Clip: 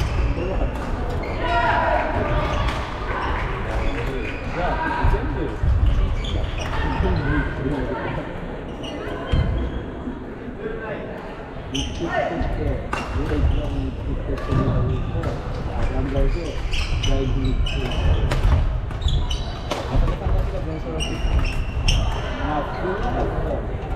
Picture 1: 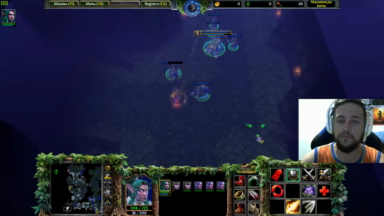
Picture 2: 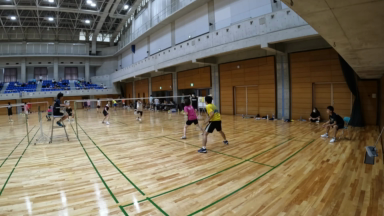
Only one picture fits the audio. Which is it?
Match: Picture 2